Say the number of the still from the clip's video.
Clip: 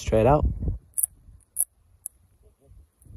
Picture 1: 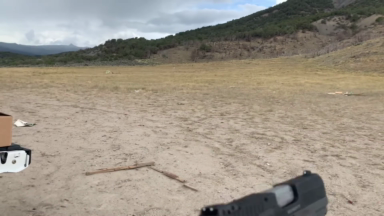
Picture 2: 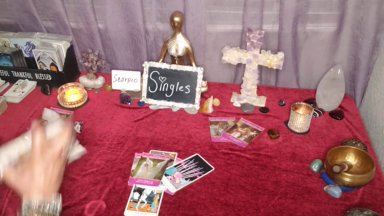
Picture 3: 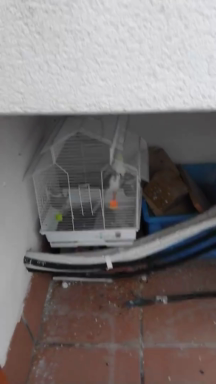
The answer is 1